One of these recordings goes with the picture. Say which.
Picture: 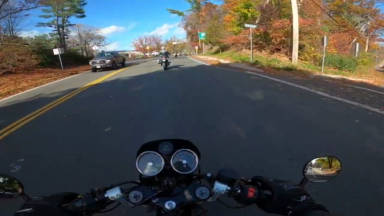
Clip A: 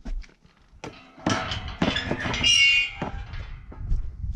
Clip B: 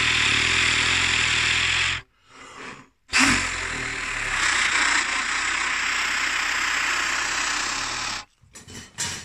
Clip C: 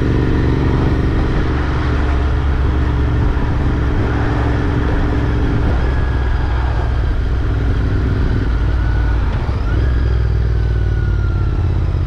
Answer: C